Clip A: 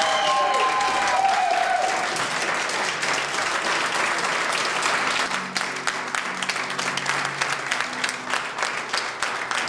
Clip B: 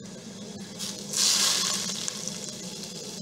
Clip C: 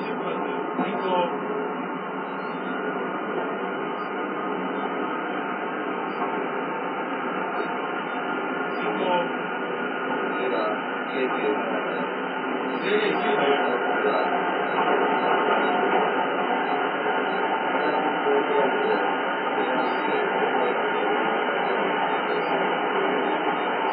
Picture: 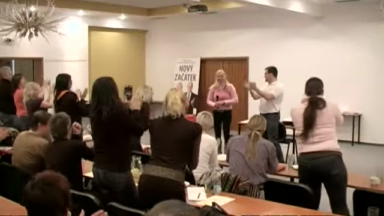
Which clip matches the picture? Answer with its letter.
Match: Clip A